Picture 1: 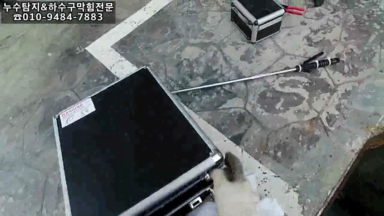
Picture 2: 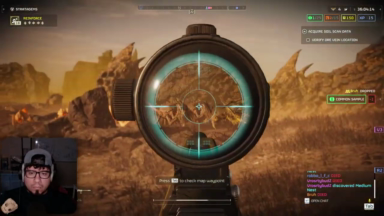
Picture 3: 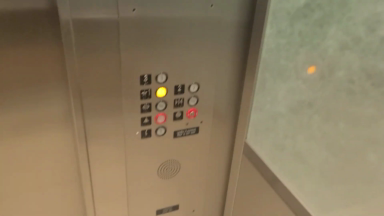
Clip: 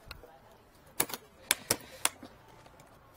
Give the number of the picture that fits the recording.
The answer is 1